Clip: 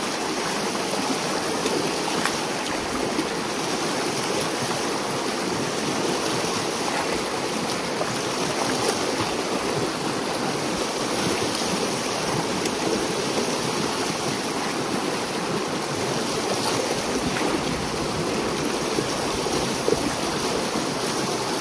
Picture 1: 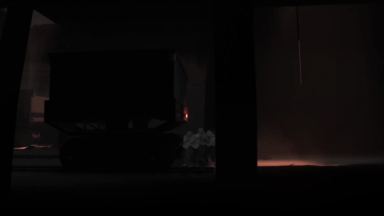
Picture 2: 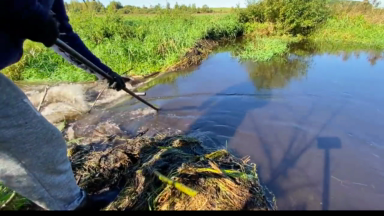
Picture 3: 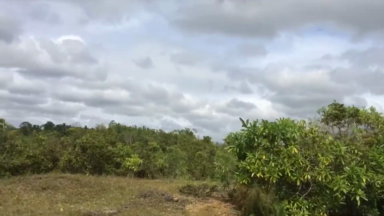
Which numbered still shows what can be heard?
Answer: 2